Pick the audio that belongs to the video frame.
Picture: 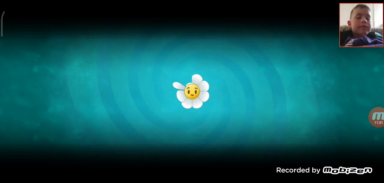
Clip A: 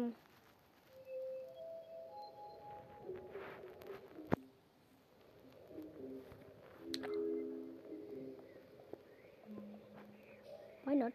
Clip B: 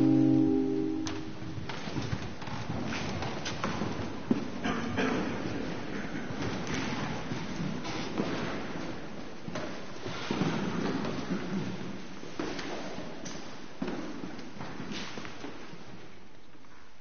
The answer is A